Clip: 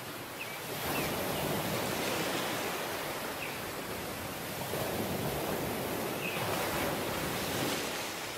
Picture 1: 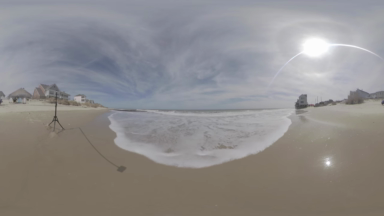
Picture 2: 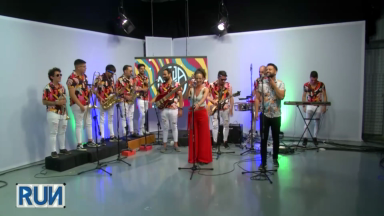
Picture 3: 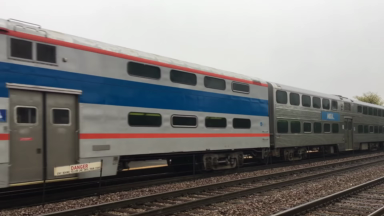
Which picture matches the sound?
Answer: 1